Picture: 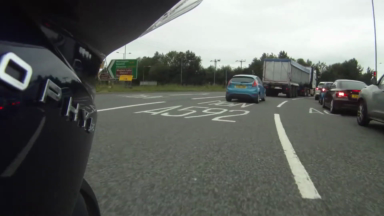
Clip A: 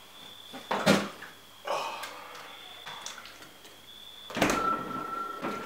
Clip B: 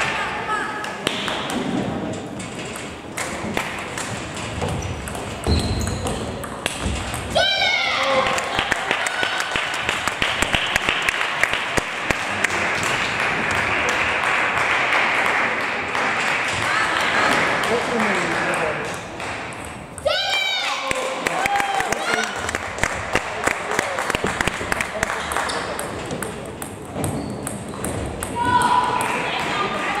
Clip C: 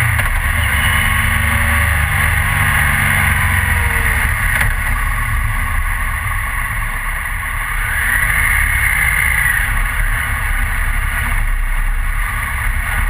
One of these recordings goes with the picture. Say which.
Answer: C